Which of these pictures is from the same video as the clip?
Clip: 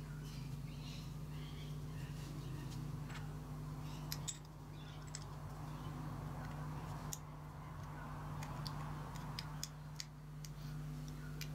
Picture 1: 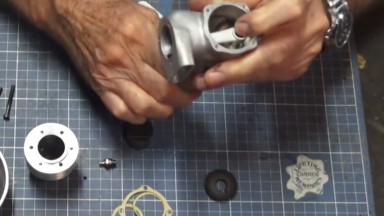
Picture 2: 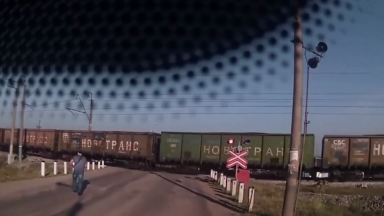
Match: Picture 1